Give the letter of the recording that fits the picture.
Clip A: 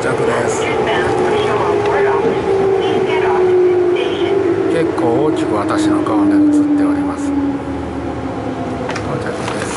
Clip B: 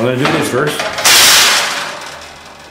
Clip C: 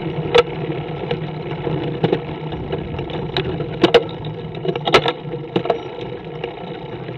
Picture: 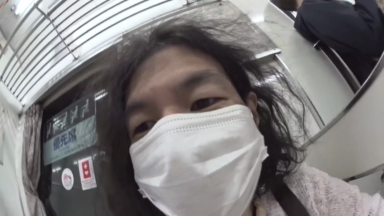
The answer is A